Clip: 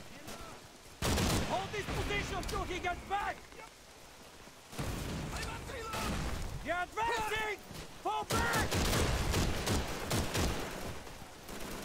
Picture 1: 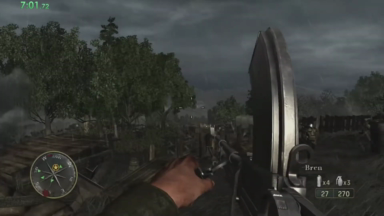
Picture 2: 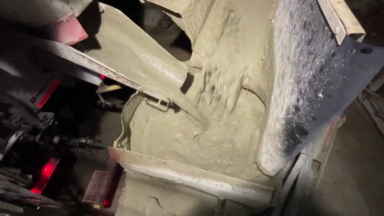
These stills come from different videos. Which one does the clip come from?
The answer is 1